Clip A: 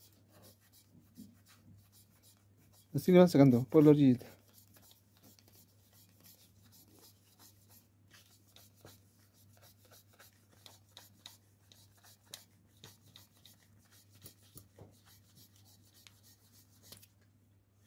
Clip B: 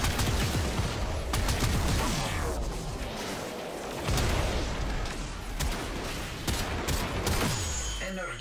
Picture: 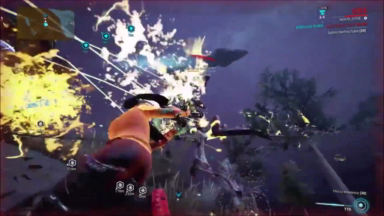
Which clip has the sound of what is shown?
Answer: B